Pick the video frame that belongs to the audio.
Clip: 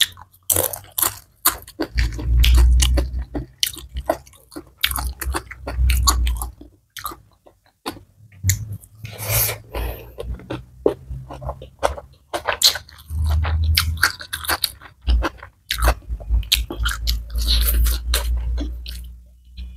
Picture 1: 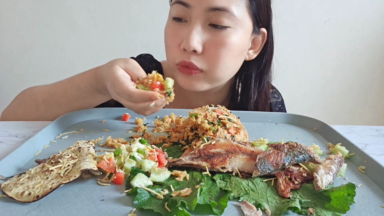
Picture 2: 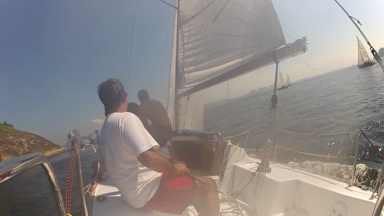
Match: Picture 1